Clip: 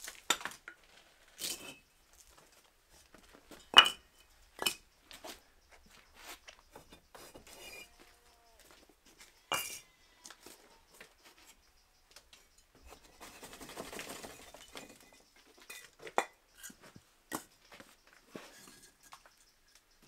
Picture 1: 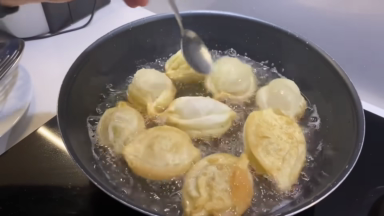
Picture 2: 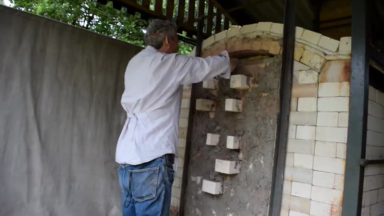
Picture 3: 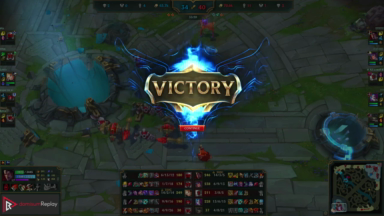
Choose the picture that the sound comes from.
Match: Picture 2